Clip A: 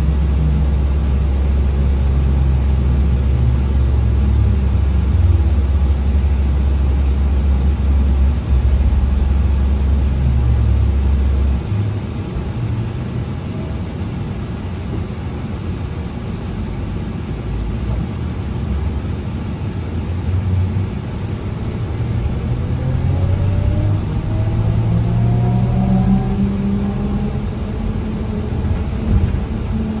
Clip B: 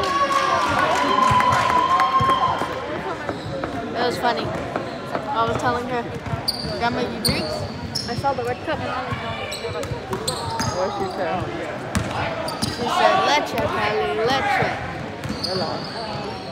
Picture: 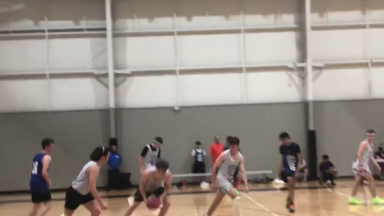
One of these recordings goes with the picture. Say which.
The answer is B